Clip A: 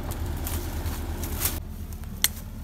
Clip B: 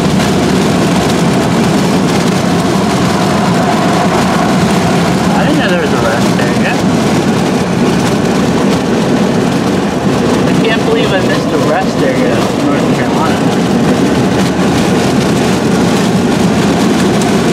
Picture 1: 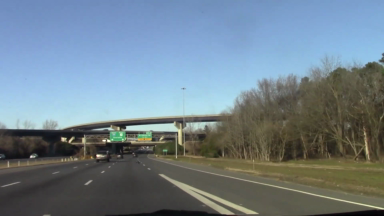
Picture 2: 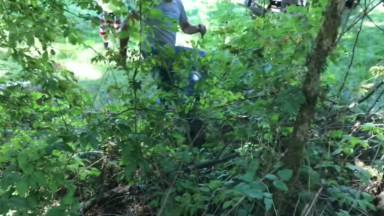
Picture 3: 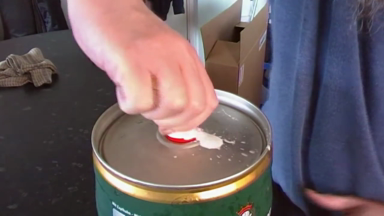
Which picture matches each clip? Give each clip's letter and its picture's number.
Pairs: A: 2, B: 1